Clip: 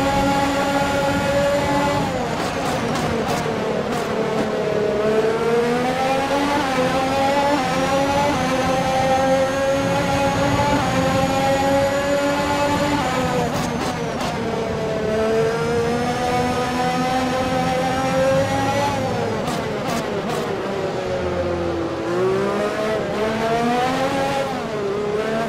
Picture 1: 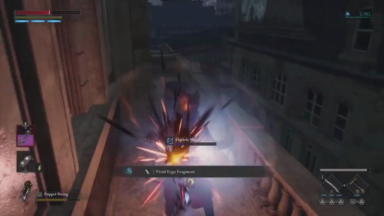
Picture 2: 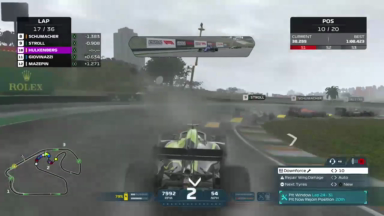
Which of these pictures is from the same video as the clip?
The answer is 2